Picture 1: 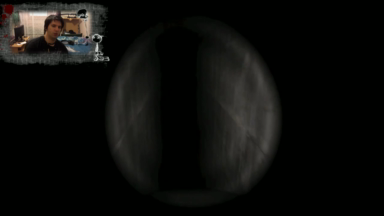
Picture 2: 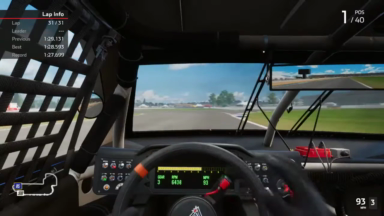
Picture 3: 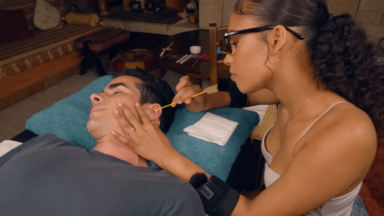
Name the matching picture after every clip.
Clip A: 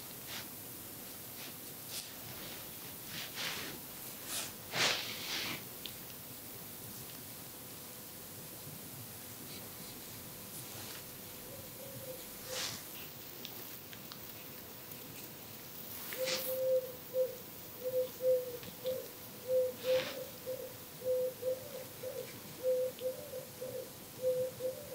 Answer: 3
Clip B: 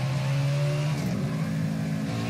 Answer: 2